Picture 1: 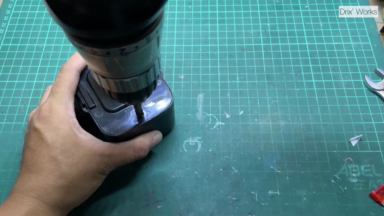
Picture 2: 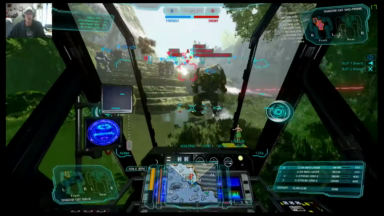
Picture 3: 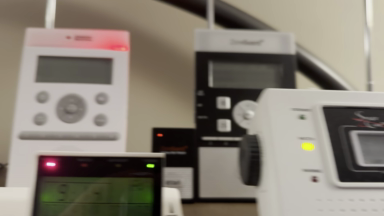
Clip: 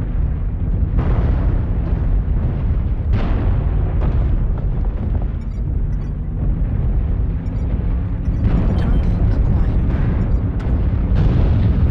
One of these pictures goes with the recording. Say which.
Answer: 2